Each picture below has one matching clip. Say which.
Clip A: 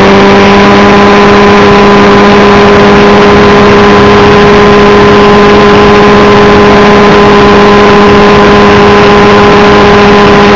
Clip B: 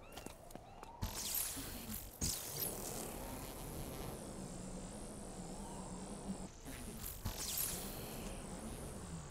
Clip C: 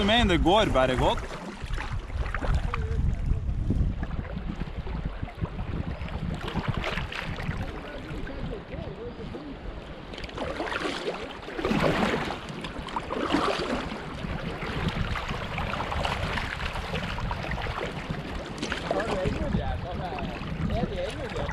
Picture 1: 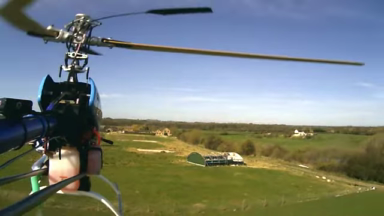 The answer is A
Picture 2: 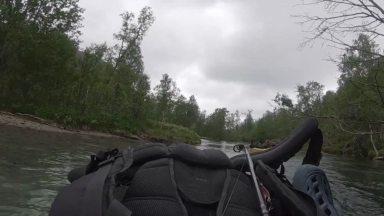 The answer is C